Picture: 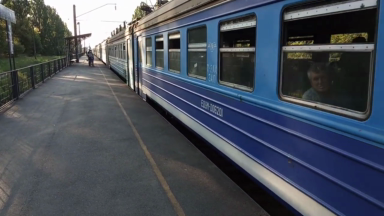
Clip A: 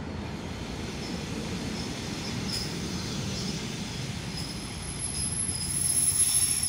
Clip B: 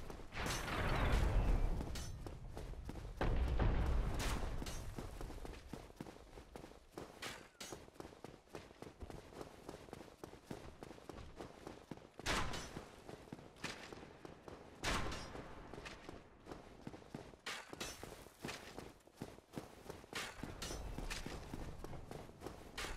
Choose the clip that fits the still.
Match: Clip A